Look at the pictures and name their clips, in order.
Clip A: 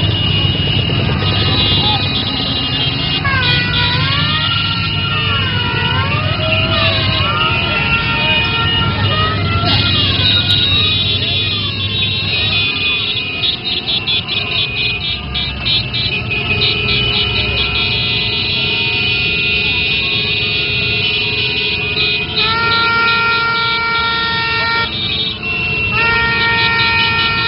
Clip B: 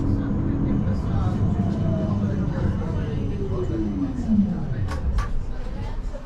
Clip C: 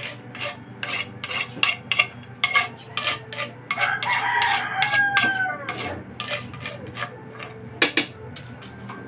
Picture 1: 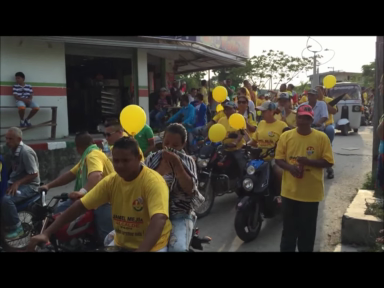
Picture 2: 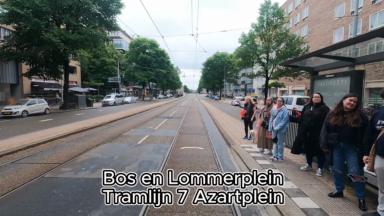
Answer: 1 A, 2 B